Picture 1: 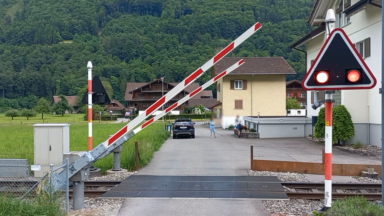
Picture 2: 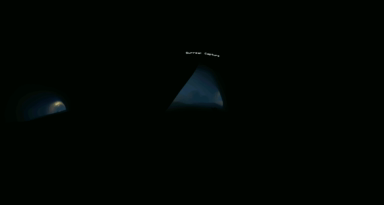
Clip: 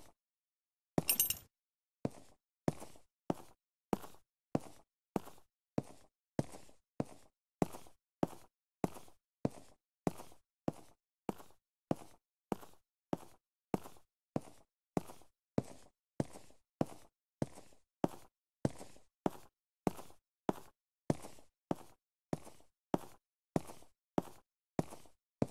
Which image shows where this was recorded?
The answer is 2